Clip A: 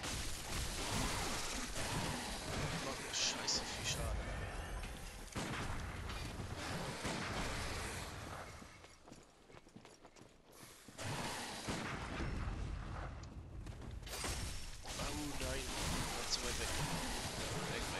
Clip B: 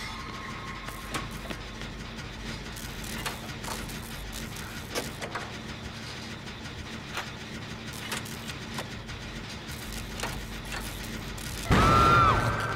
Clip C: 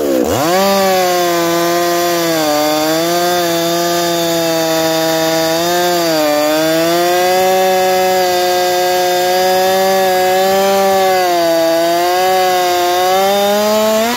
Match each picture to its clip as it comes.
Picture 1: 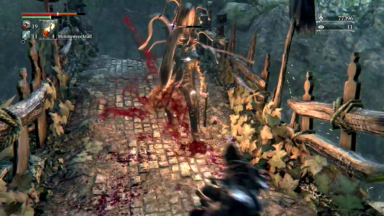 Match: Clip A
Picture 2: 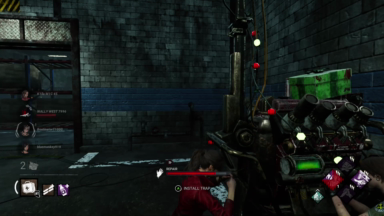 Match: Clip B